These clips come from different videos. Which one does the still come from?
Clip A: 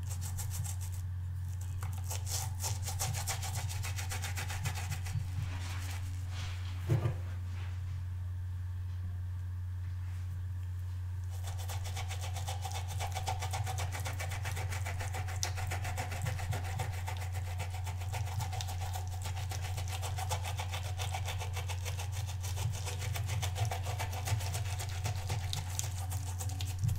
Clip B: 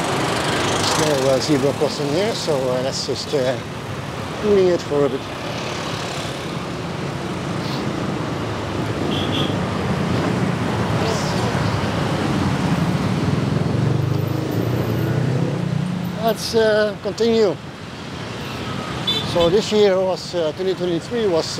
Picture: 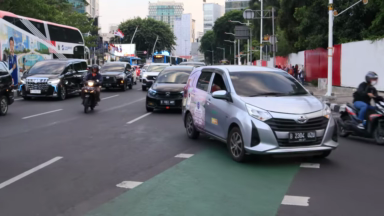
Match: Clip B